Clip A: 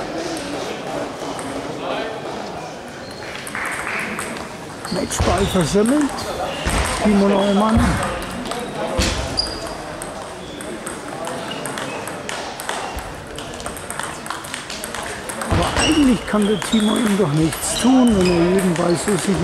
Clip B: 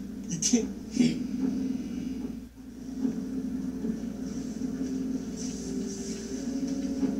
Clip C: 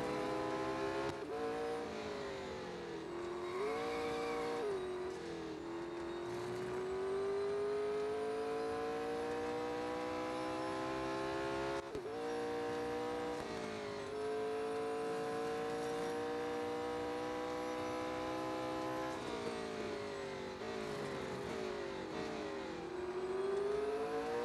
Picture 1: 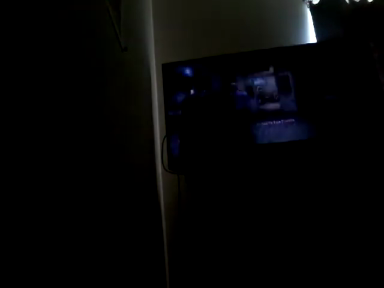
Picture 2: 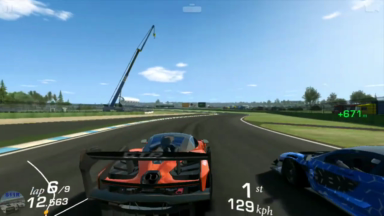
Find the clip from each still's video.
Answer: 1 B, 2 C